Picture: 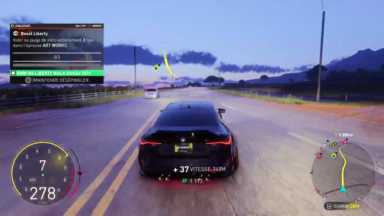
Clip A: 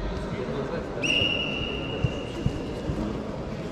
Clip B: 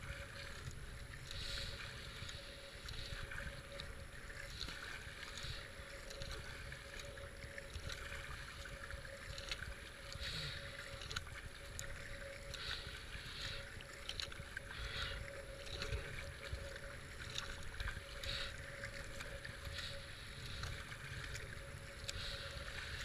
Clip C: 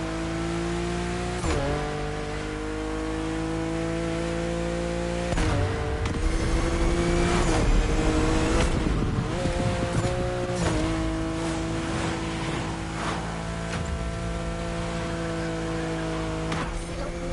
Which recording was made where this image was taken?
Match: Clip C